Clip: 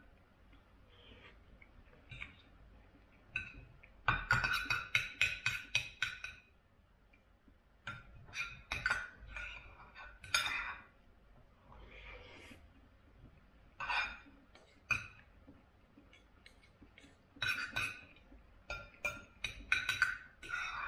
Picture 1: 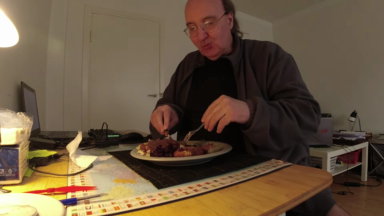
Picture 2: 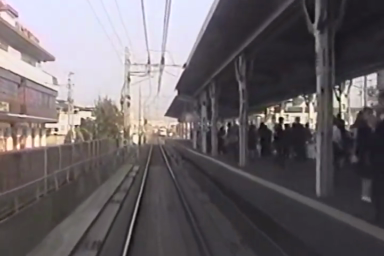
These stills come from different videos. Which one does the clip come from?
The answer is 1